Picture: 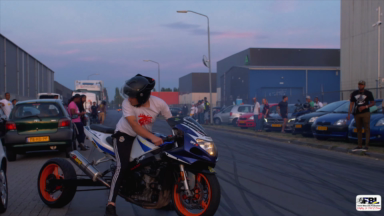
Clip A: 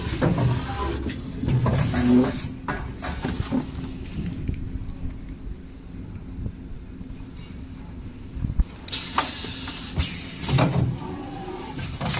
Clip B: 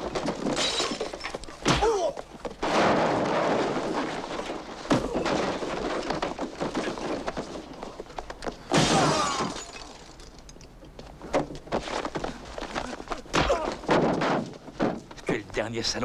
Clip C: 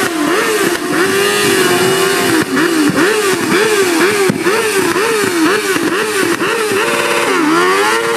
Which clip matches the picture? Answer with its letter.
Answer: C